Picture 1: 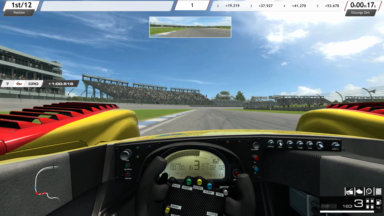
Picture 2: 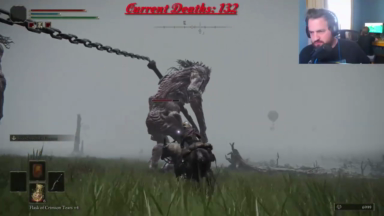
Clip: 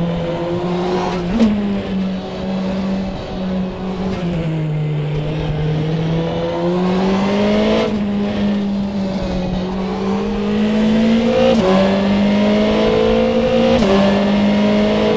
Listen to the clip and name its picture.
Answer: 1